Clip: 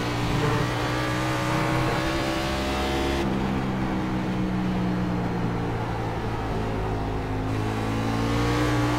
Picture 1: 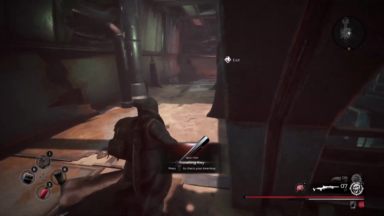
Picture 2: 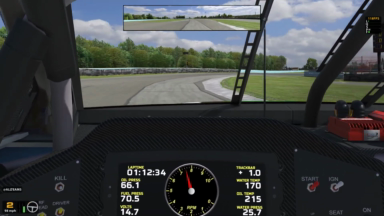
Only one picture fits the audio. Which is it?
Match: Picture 2